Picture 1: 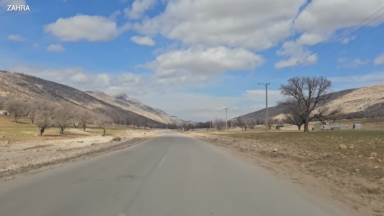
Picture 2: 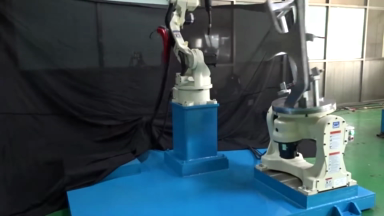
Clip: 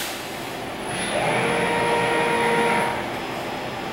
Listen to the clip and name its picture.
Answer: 2